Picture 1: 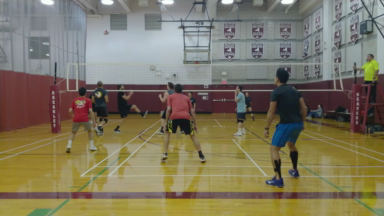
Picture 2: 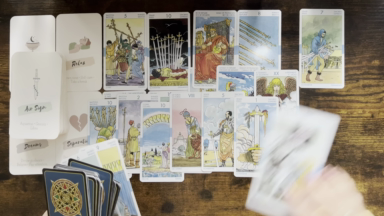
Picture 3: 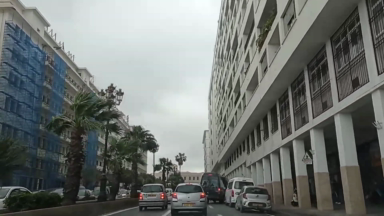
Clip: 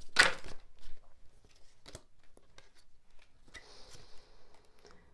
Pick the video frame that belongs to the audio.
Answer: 2